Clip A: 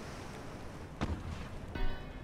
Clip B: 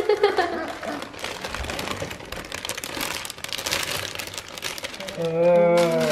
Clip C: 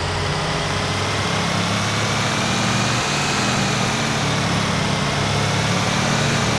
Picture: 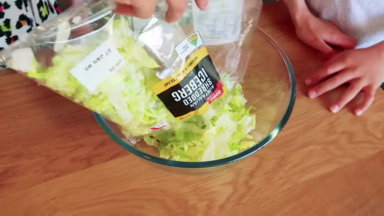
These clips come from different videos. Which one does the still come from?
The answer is B